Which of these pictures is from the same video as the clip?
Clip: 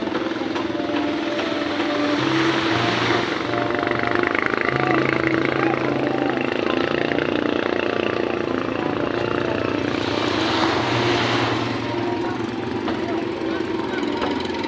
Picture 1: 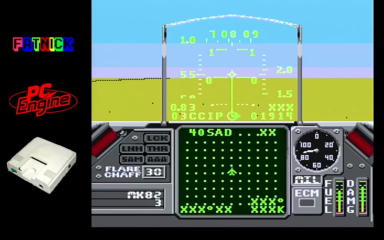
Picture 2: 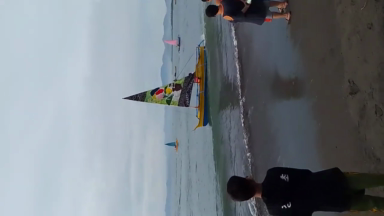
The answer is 2